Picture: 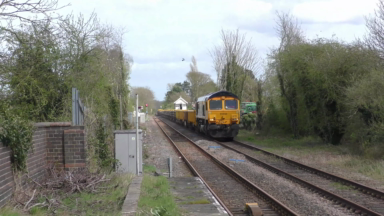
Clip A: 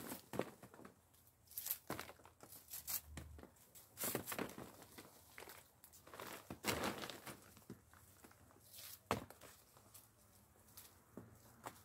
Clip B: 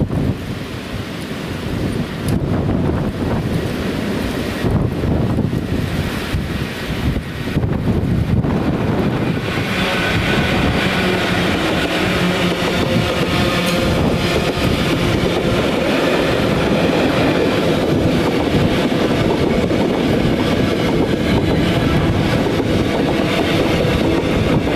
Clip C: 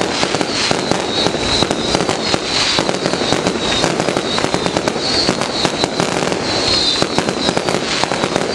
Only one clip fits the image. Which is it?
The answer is B